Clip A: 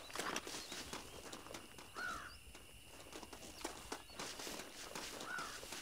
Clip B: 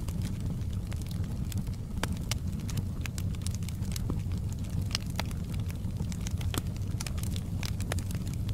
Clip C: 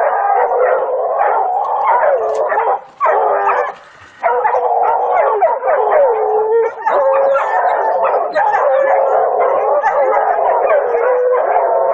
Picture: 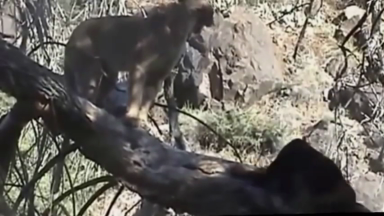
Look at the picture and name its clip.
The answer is C